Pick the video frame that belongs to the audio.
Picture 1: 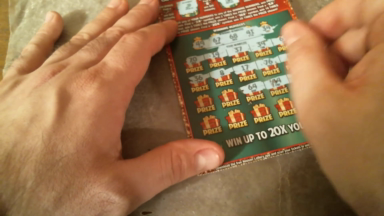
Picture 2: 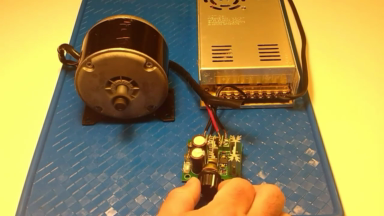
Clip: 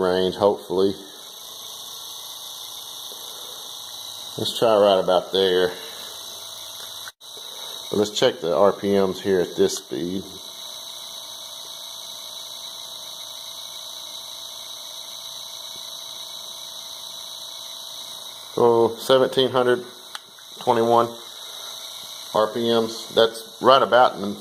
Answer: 2